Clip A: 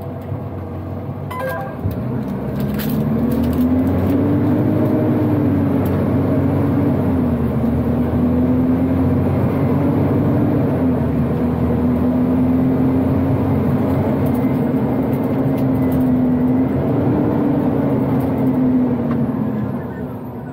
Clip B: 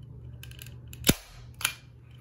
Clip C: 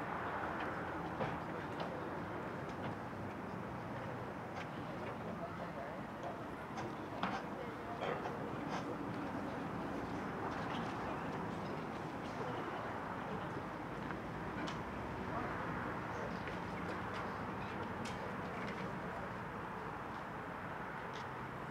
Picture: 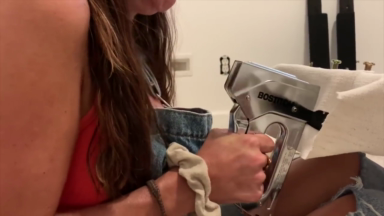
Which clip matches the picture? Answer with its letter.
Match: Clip B